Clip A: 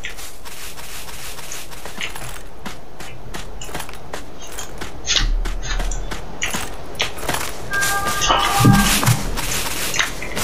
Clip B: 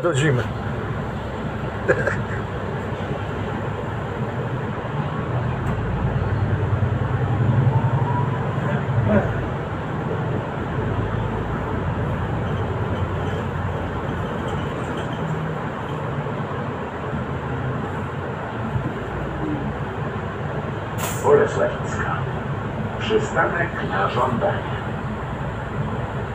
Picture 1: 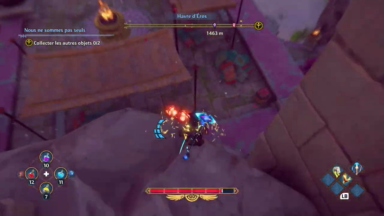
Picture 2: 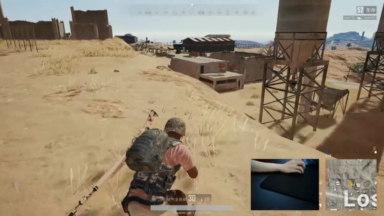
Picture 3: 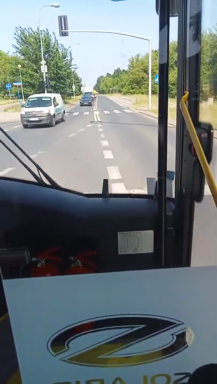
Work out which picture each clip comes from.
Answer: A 2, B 3